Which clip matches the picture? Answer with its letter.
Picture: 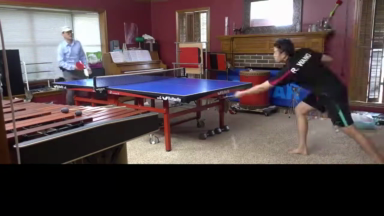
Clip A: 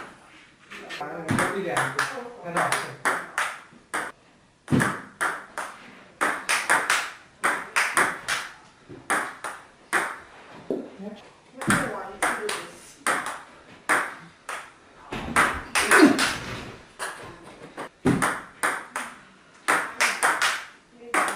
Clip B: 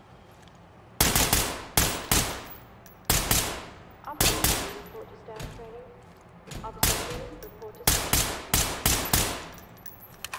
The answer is A